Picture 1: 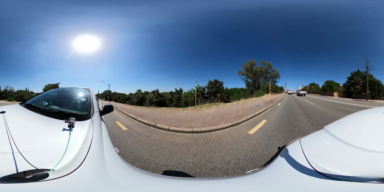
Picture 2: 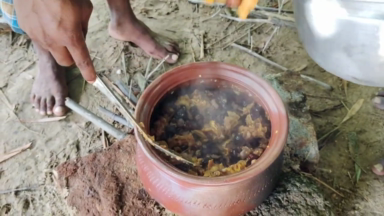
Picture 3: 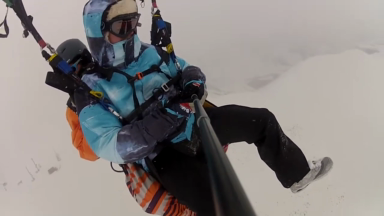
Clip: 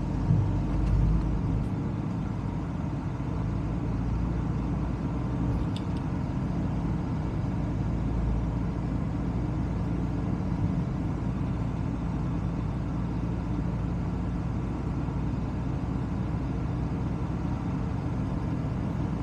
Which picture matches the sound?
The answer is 1